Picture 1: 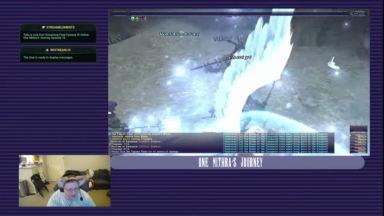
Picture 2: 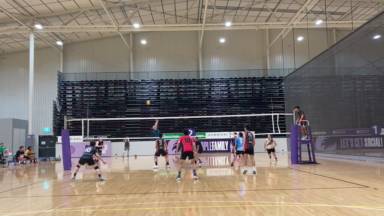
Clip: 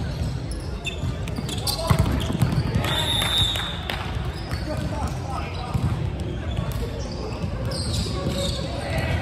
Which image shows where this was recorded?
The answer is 2